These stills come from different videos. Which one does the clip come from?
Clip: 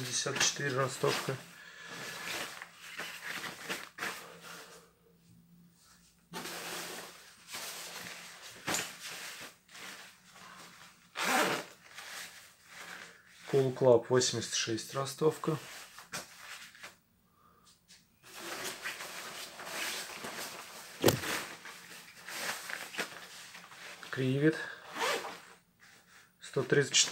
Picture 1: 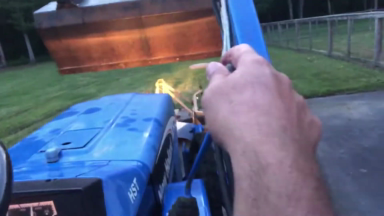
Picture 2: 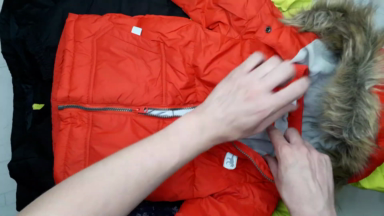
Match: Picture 2